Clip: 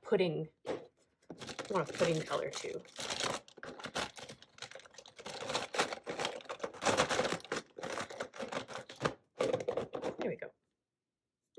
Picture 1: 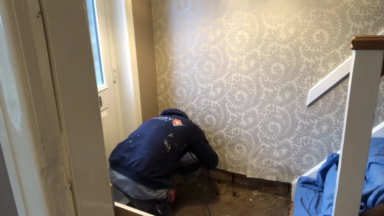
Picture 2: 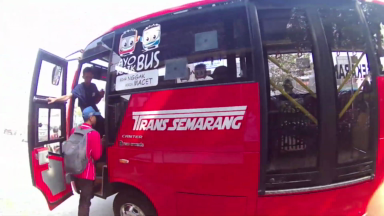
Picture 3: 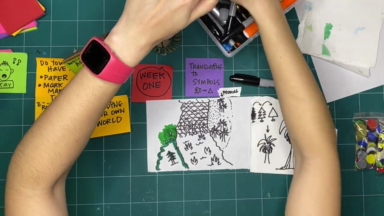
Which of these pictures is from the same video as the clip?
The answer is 3